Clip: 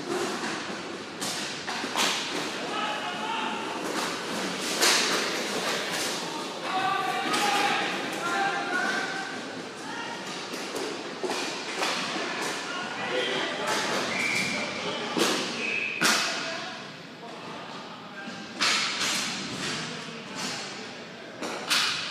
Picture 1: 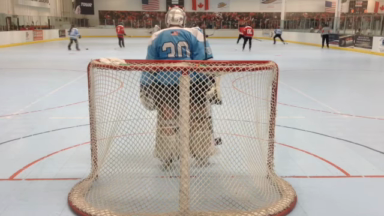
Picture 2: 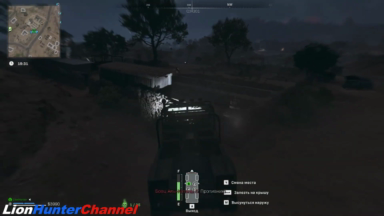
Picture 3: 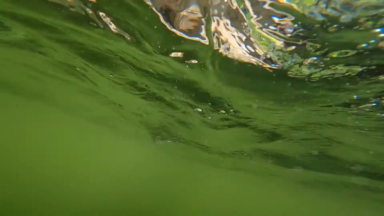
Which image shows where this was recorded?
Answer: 1